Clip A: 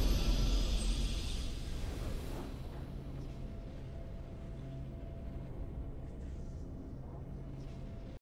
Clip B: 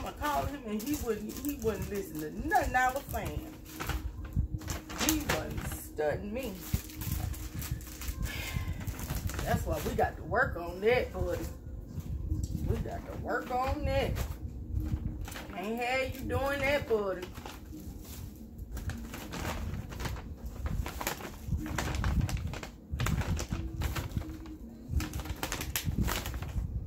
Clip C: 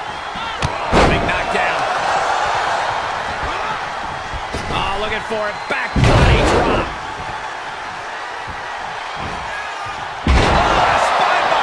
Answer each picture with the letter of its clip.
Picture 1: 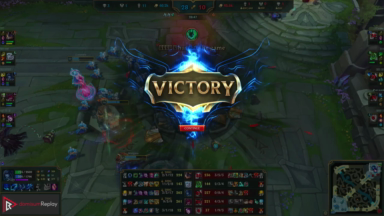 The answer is A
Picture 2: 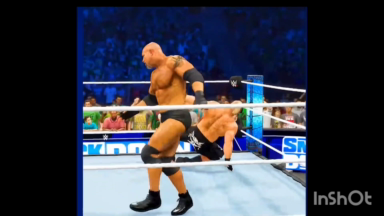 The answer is C